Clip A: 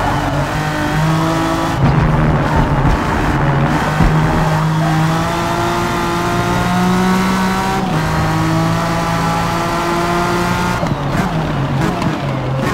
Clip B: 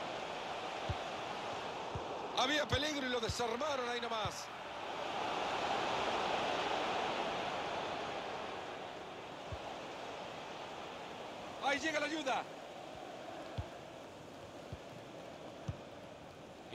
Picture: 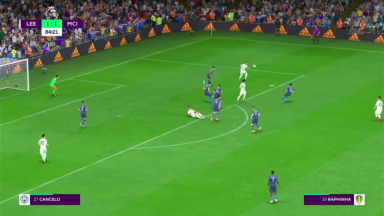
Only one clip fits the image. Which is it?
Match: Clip B